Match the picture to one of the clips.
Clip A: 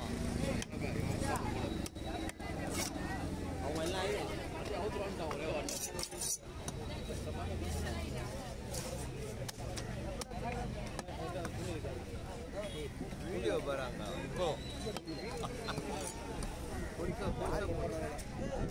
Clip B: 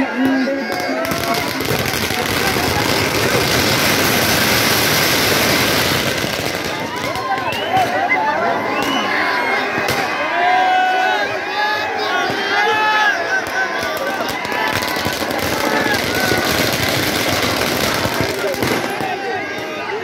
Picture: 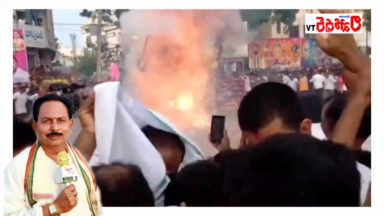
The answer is B